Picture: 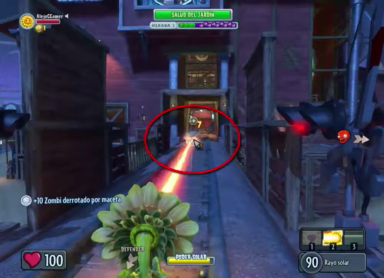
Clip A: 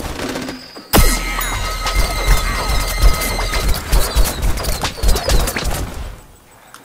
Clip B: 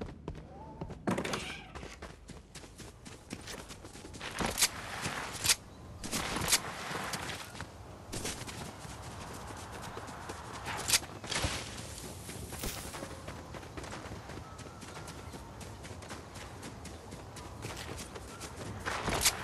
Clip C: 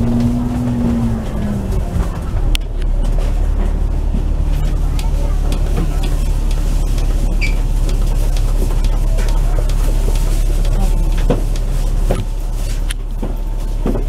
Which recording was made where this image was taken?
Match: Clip A